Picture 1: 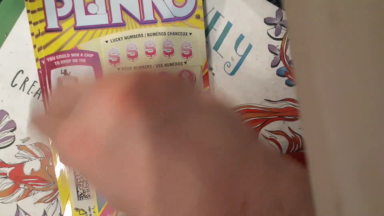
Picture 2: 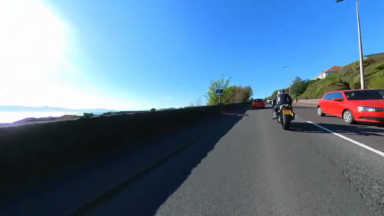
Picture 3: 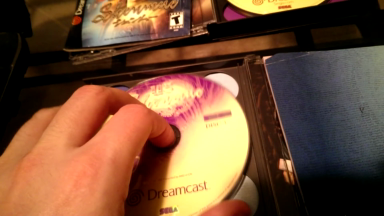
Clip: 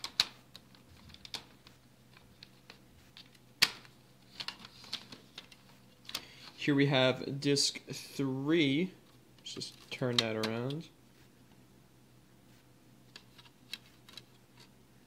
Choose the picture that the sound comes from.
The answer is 3